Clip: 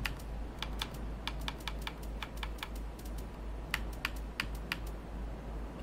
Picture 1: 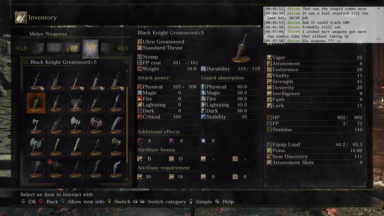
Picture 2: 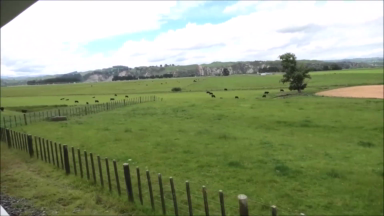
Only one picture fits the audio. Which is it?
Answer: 1